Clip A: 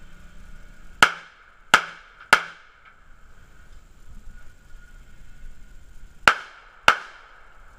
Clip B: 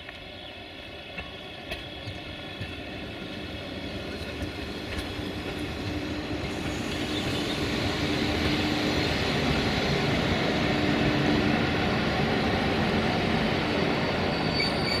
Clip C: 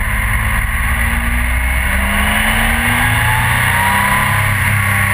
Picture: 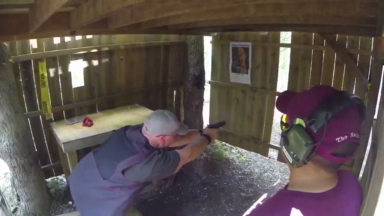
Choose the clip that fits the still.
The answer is A